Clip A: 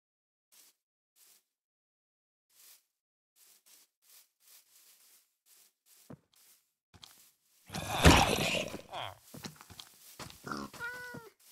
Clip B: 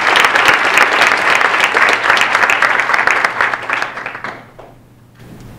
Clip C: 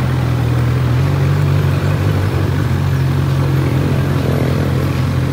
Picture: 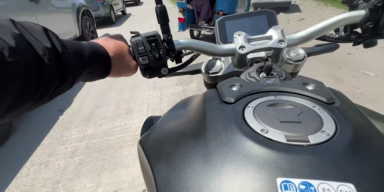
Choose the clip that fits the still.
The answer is C